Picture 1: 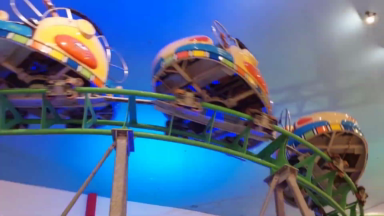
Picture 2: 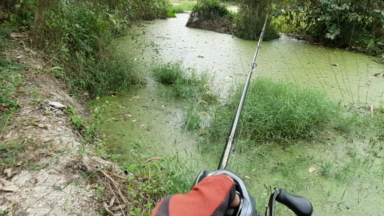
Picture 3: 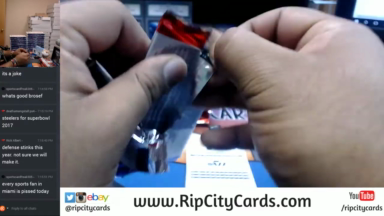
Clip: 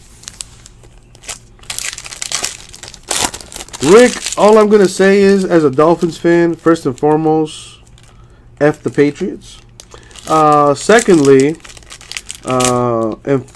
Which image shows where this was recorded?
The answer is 3